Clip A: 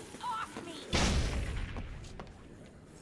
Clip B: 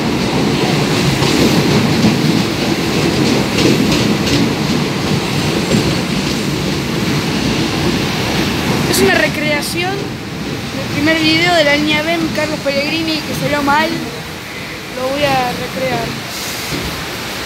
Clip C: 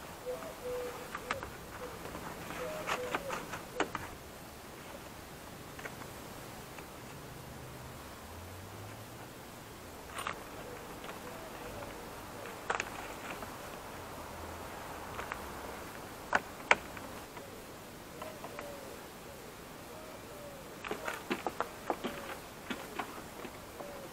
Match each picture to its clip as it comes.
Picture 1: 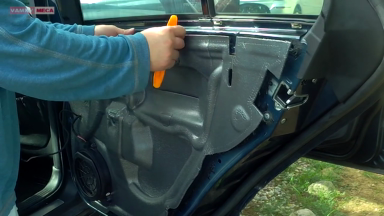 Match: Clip C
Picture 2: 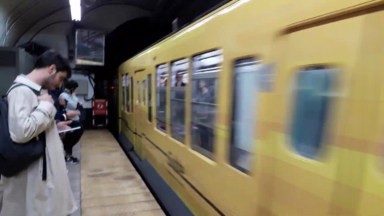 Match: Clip B